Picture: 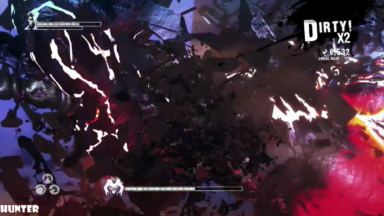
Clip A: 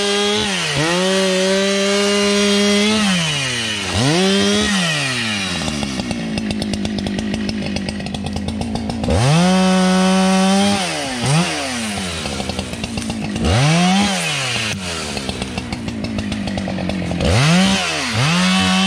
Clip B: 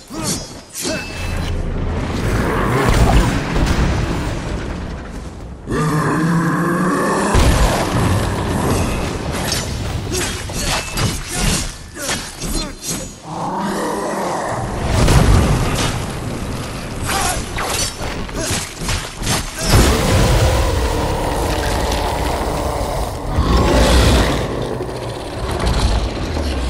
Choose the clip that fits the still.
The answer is B